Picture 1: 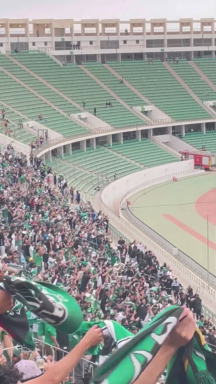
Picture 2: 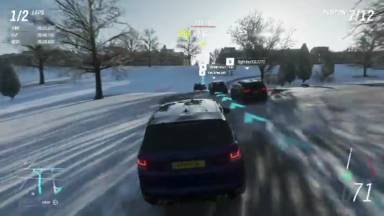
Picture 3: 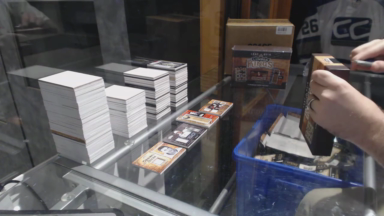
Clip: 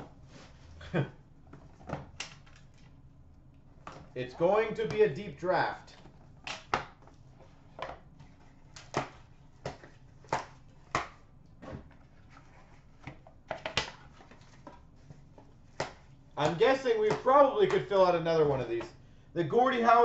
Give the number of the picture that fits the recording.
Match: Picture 3